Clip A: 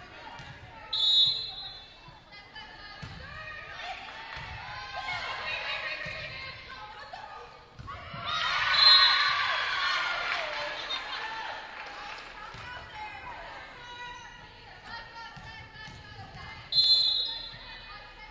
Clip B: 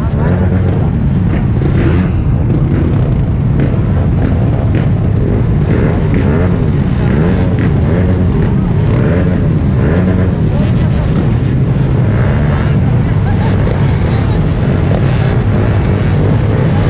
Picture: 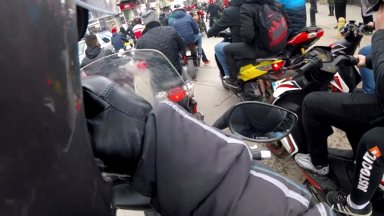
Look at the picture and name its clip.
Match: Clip B